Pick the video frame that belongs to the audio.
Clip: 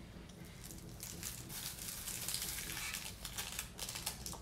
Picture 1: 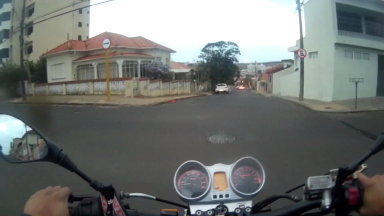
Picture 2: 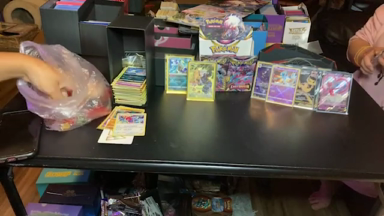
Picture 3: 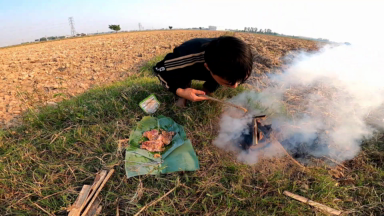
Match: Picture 2